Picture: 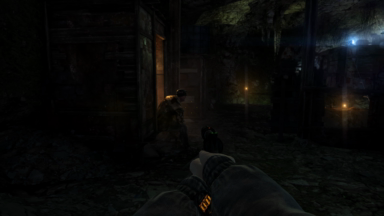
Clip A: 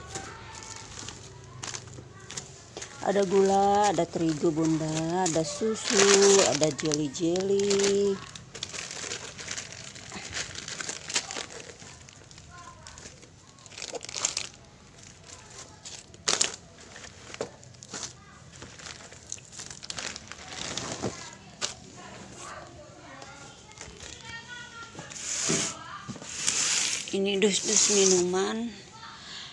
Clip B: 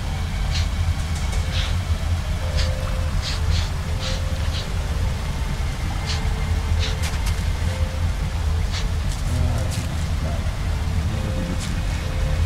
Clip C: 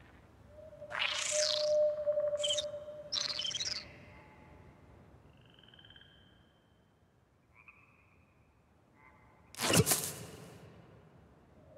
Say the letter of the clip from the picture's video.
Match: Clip B